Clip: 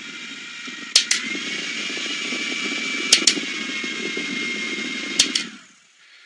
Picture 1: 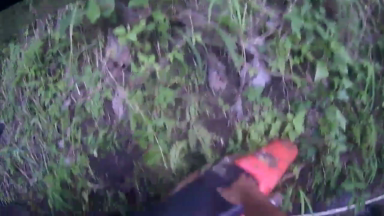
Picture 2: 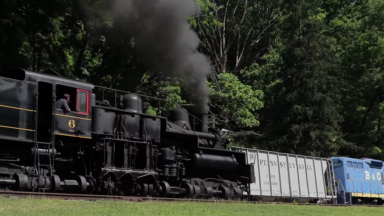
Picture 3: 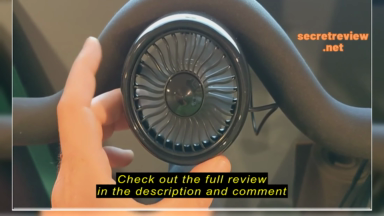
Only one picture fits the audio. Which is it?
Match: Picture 3